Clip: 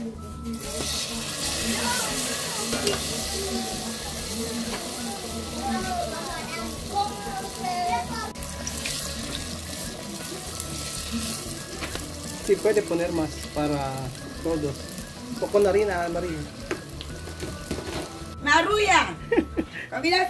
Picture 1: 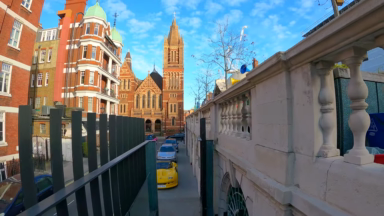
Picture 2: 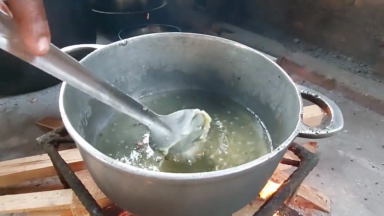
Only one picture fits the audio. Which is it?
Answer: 2